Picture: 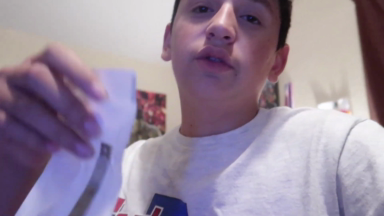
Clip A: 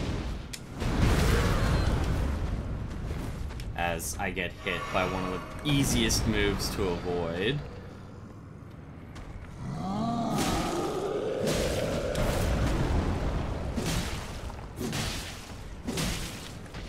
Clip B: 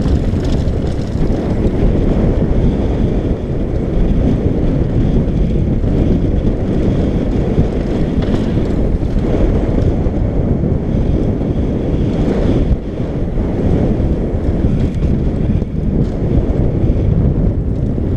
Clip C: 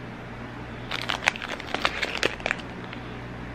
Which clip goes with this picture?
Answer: C